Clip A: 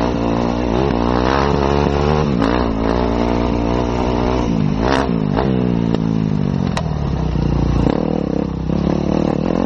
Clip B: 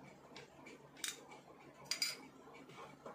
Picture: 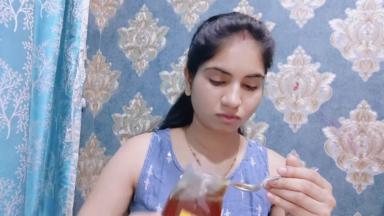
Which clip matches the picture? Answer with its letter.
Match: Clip B